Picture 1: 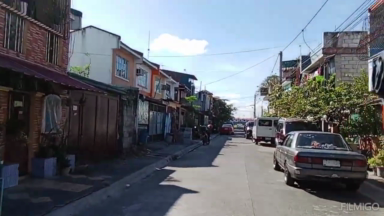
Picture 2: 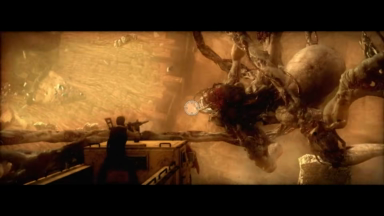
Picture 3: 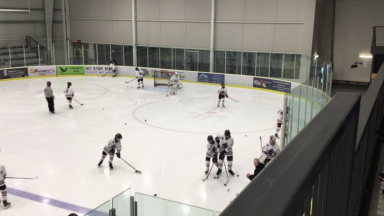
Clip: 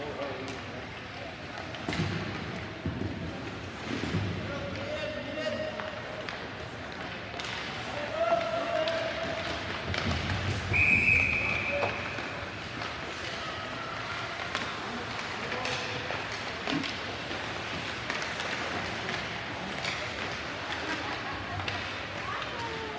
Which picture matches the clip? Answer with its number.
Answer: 3